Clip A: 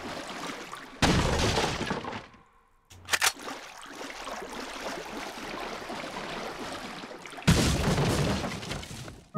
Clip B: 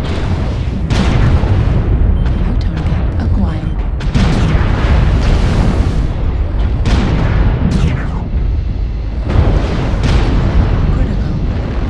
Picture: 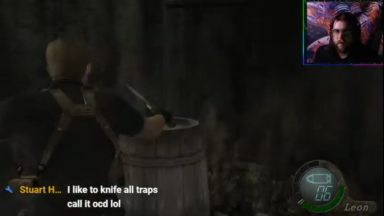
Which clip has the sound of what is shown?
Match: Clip A